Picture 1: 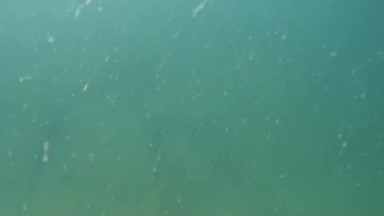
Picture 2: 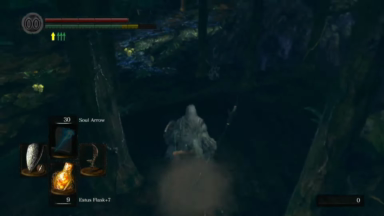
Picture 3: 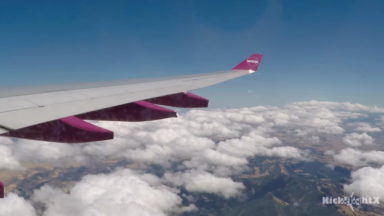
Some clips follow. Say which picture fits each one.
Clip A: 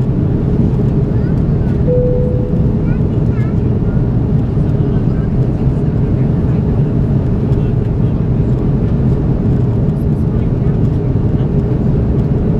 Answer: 3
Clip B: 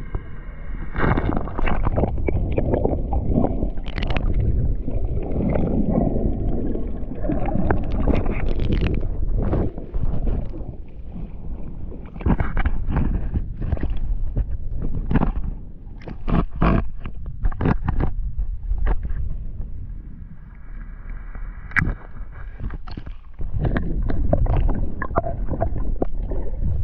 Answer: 1